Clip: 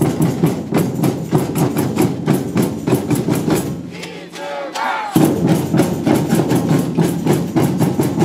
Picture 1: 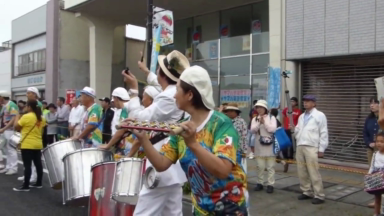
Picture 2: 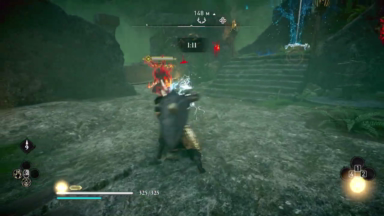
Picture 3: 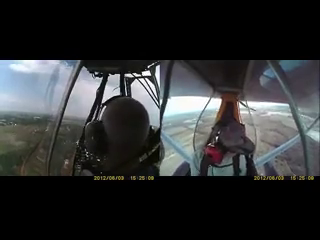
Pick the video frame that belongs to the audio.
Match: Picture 1